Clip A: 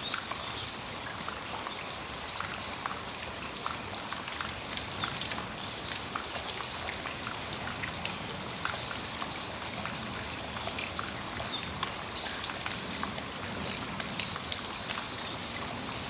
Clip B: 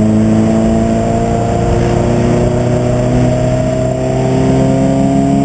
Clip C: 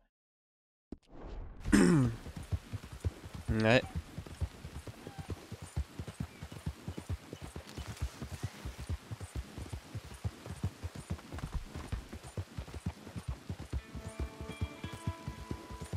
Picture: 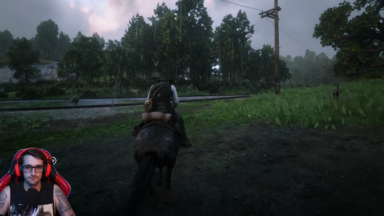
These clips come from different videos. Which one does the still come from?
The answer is C